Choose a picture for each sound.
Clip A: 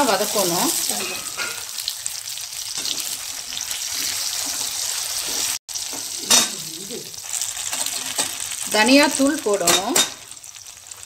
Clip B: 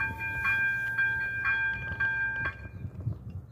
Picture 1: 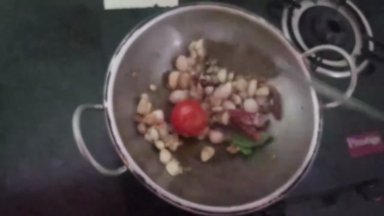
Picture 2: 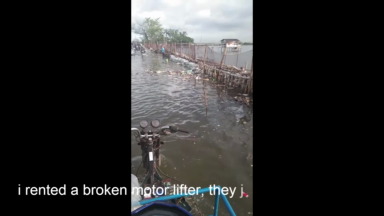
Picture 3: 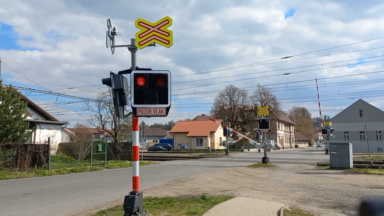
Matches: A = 1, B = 3